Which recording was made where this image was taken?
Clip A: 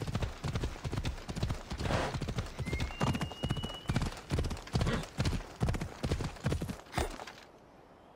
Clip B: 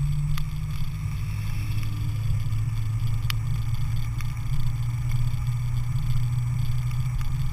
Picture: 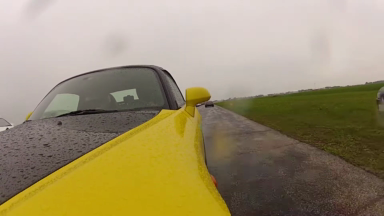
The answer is B